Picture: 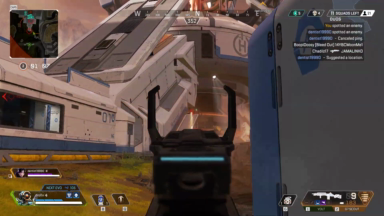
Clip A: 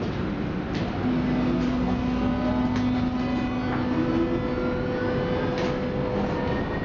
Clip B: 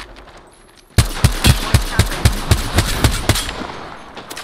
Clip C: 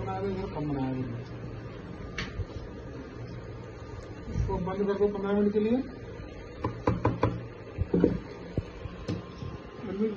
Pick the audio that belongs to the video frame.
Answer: B